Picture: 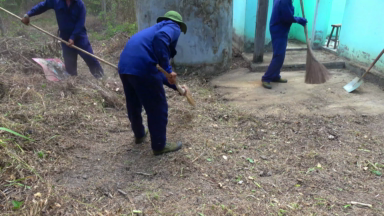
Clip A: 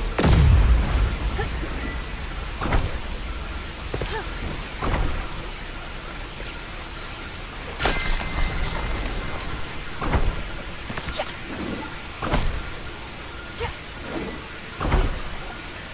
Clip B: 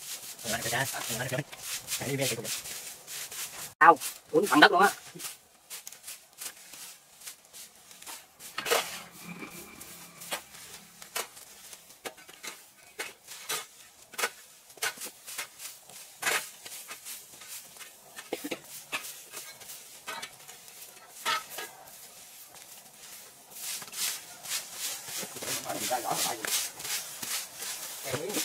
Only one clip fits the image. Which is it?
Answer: B